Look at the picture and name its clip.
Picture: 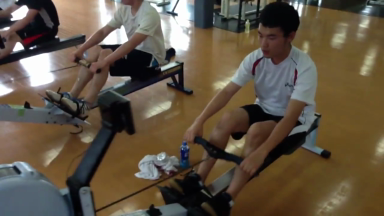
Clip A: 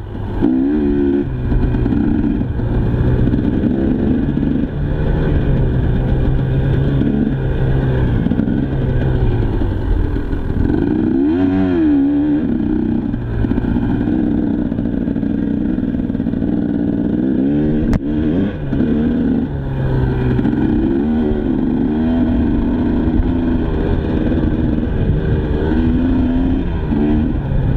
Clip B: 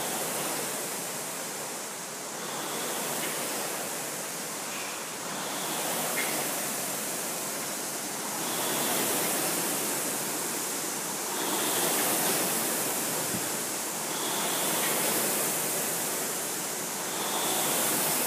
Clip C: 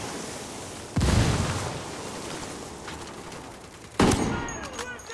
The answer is B